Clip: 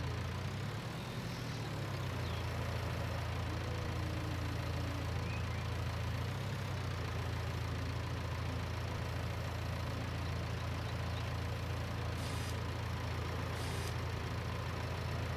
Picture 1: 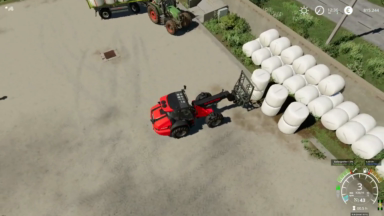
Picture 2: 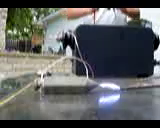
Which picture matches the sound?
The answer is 1